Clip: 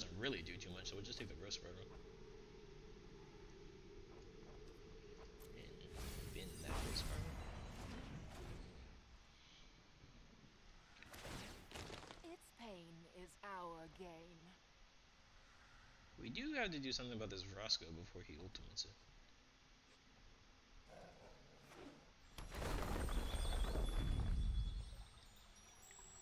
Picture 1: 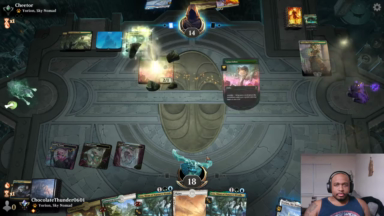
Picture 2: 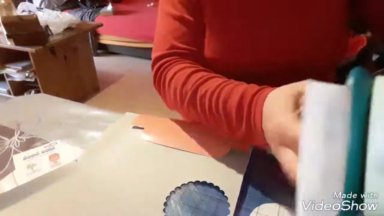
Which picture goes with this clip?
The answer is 1